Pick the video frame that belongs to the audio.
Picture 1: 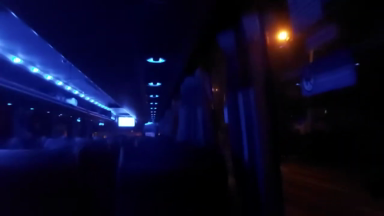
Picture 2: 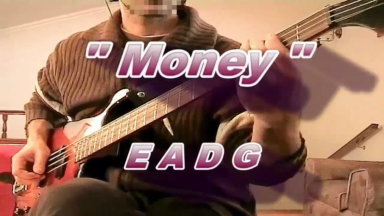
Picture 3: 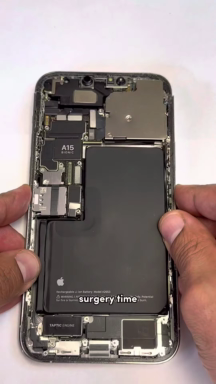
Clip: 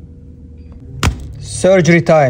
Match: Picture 3